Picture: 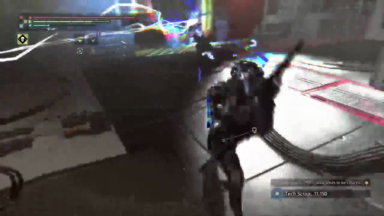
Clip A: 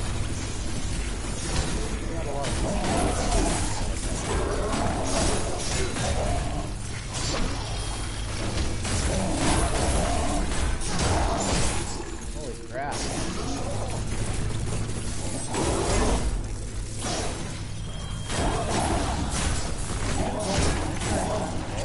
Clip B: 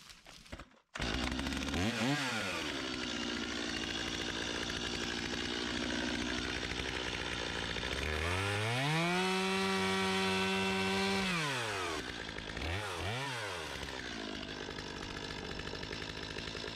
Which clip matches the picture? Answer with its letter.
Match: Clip A